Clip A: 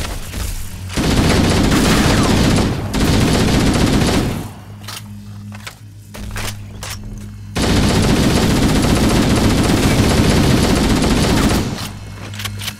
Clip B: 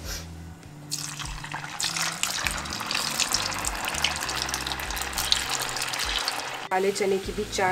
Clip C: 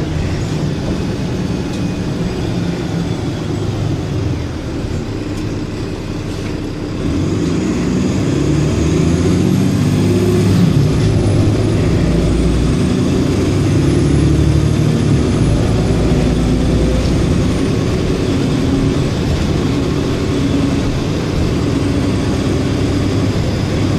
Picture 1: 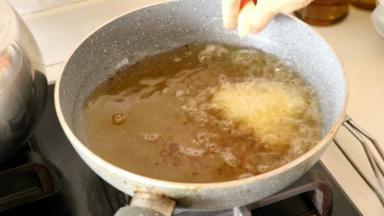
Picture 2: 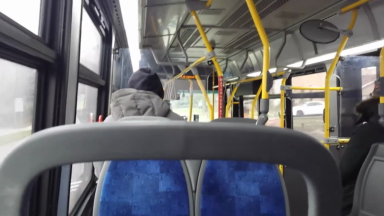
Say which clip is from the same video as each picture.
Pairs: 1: B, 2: C